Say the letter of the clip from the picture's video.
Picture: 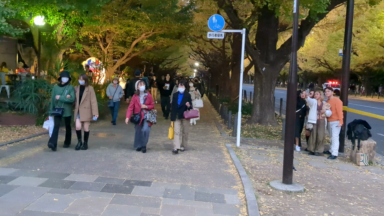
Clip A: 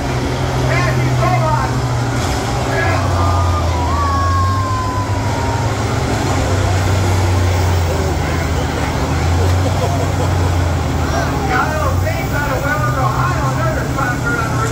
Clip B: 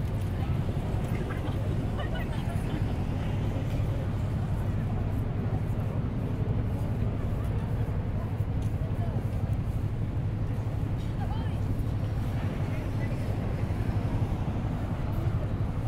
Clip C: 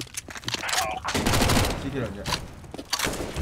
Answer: B